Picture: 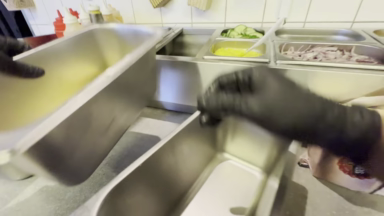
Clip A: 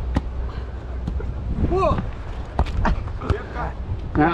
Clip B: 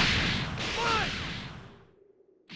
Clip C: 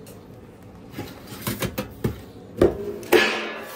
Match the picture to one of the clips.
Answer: C